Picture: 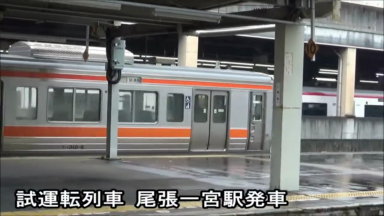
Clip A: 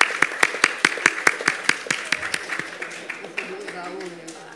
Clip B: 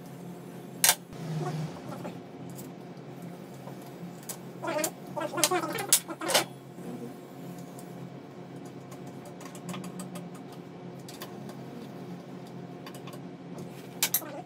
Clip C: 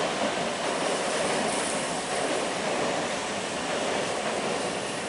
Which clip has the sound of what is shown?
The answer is C